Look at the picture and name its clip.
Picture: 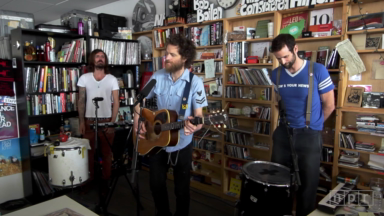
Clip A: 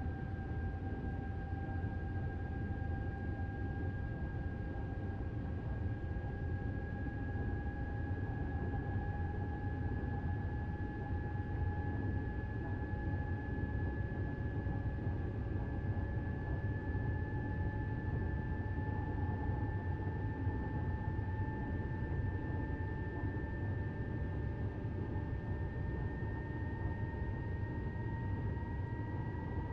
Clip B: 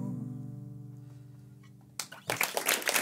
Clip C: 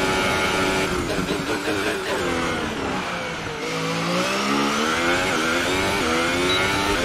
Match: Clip B